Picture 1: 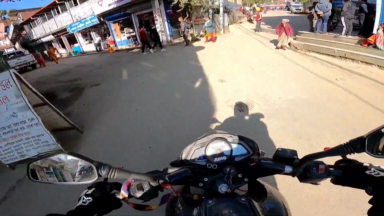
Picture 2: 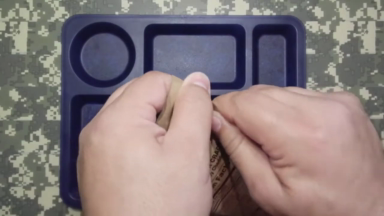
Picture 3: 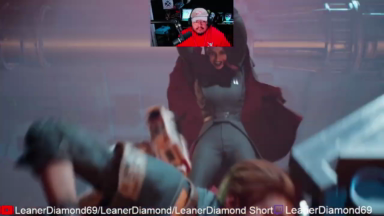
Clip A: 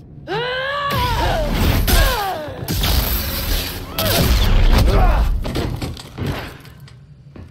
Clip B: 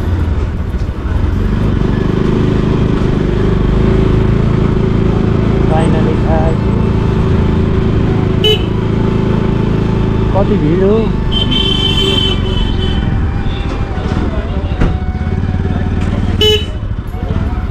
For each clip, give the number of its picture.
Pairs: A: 3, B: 1